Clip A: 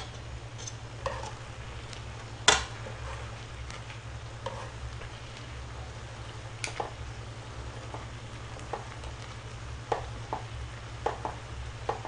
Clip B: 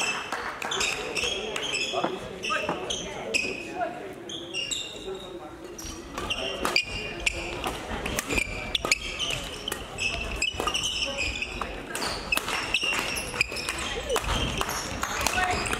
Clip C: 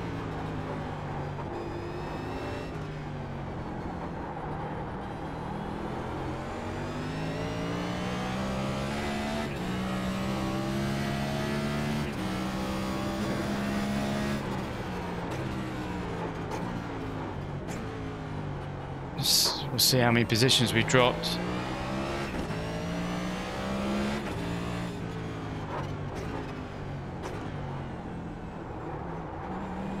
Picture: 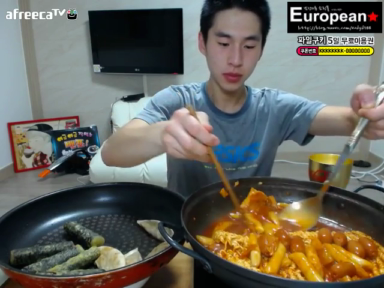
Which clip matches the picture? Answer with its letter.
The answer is A